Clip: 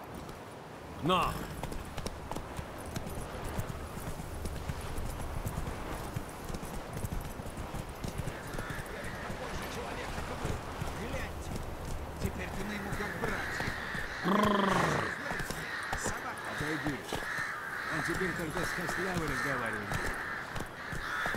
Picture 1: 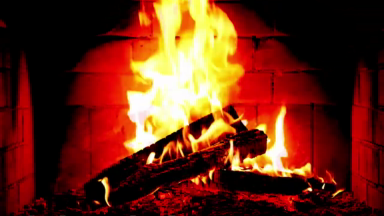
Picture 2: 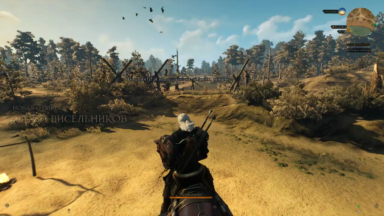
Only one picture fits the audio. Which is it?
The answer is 2